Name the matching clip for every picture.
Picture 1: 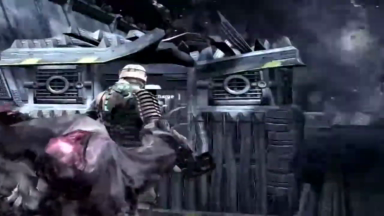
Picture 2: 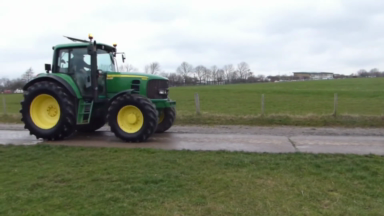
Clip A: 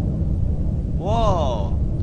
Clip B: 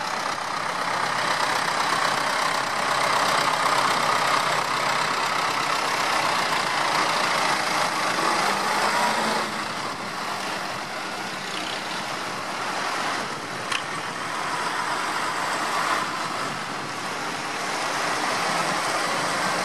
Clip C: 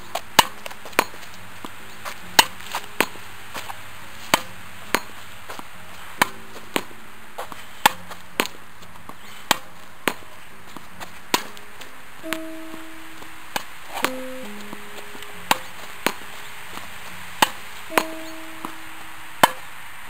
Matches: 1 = A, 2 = B